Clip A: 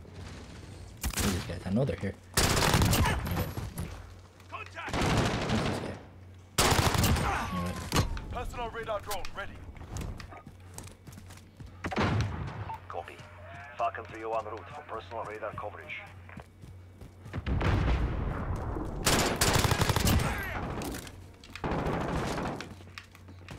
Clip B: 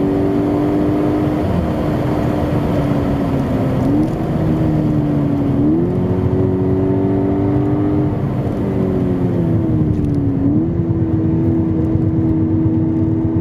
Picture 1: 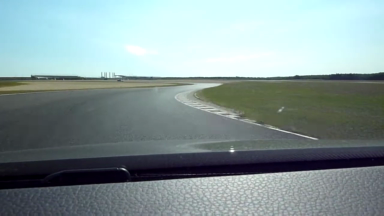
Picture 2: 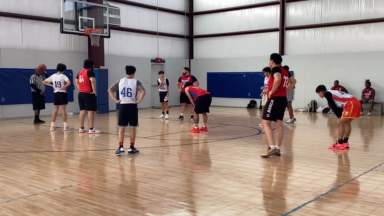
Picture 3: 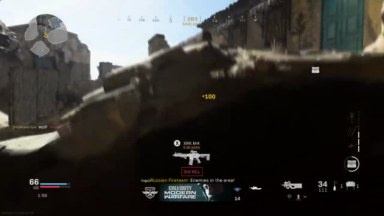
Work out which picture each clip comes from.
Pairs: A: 3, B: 1